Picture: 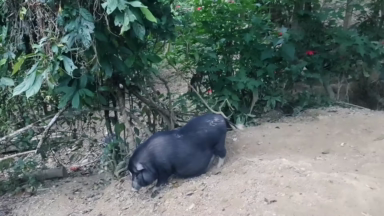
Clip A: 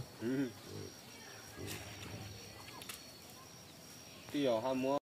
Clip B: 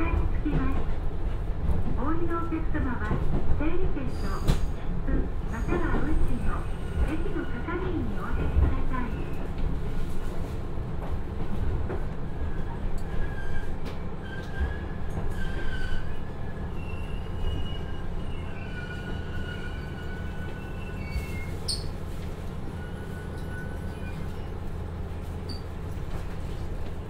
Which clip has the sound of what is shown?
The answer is A